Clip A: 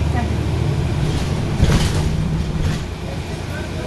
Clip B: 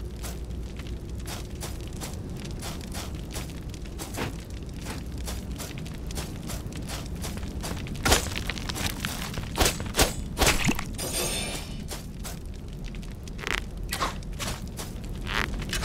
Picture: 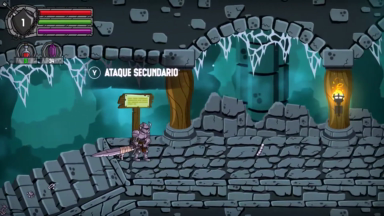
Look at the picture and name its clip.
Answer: B